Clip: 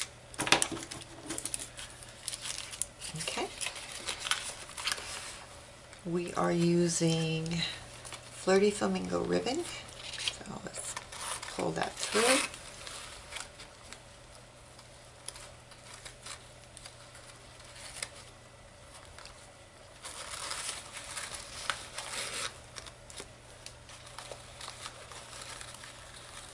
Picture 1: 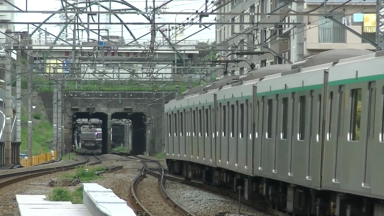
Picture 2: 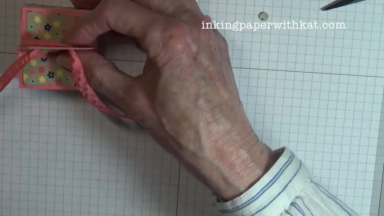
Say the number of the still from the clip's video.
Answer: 2